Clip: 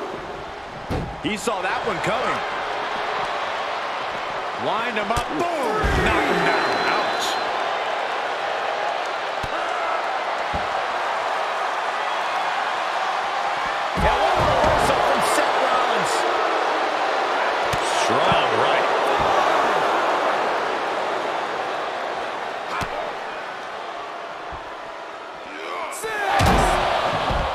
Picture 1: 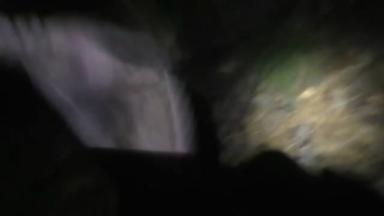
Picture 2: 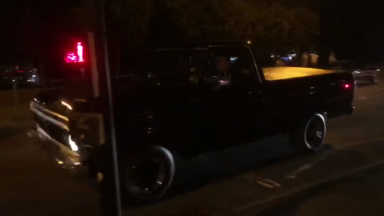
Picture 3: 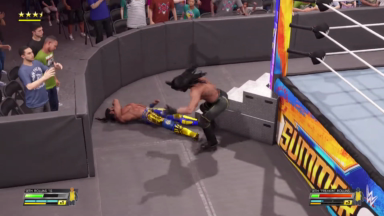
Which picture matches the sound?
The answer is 3